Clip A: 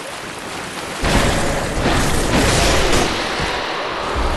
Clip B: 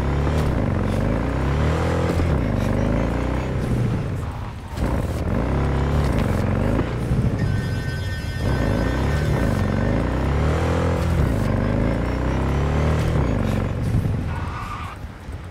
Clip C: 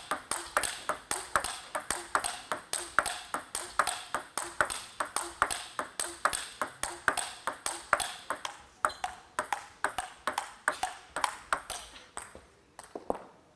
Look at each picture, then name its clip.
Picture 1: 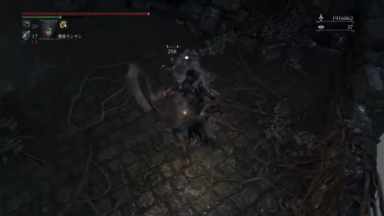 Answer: A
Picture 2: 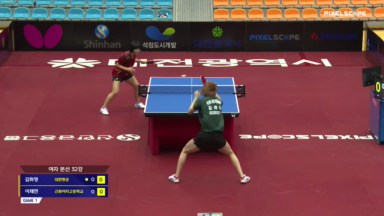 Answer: C